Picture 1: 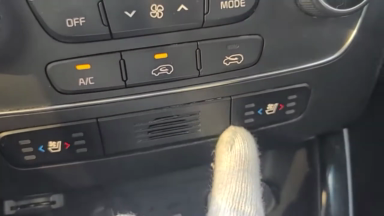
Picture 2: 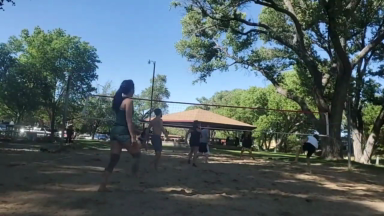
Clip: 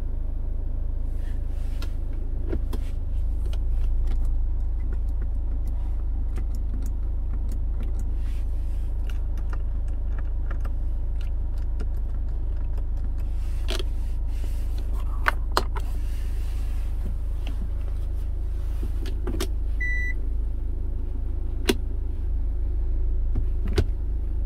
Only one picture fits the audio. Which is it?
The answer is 1